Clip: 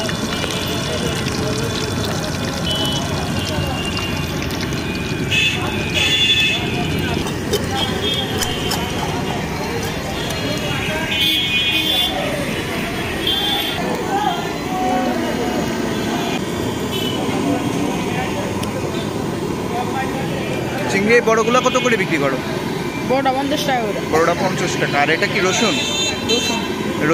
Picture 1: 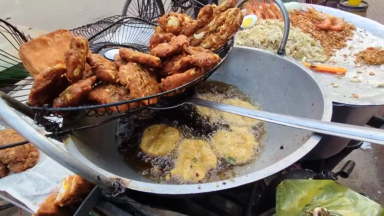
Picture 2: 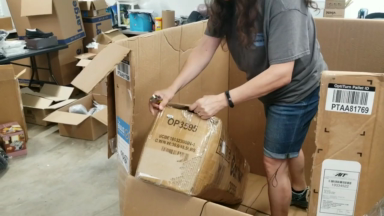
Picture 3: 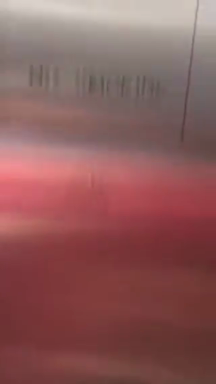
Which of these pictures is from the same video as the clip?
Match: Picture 1